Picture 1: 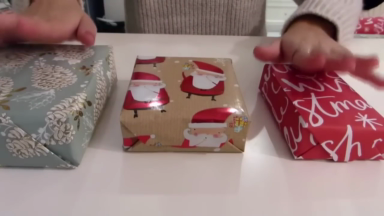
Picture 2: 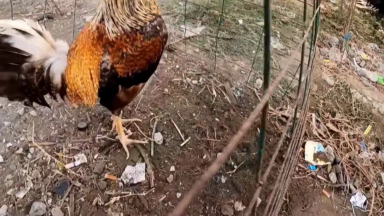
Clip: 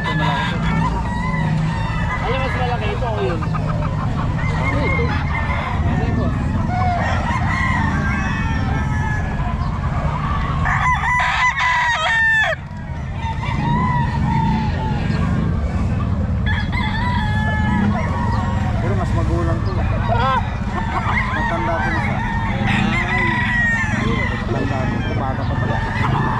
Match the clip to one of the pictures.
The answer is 2